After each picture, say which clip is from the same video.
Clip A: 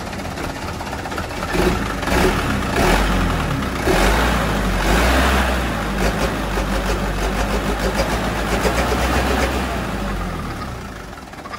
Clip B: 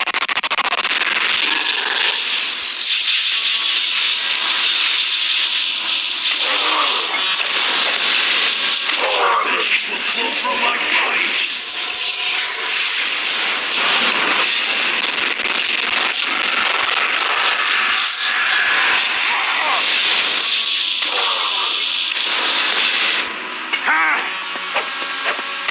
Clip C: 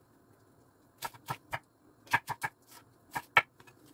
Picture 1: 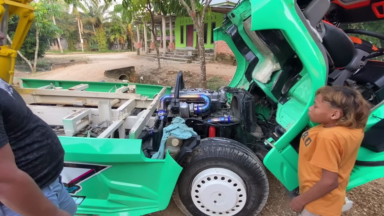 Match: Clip A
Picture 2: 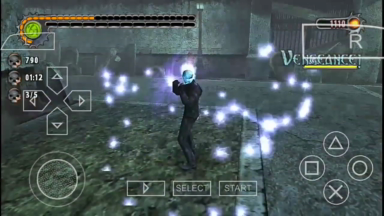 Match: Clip B